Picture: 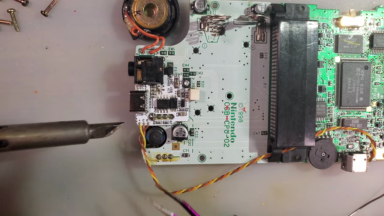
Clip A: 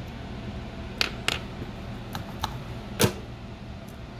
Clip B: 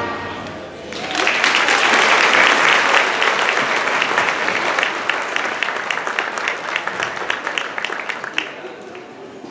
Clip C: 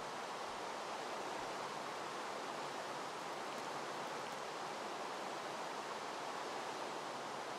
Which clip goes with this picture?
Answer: A